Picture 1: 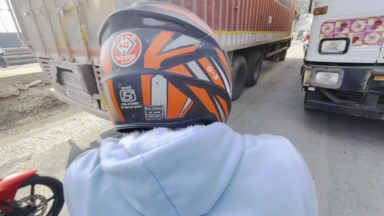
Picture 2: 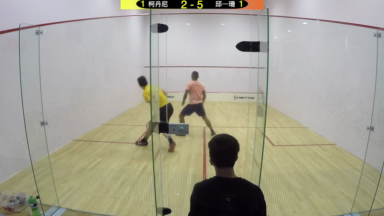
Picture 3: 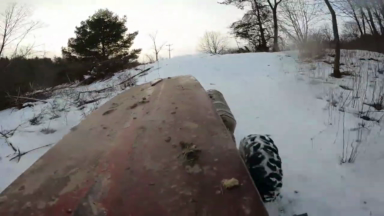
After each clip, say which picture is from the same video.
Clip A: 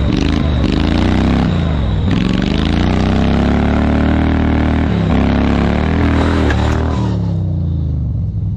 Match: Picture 3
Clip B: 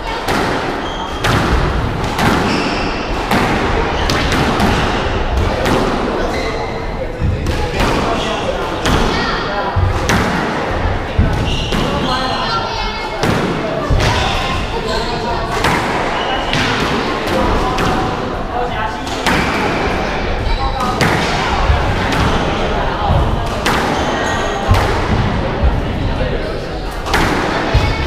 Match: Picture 2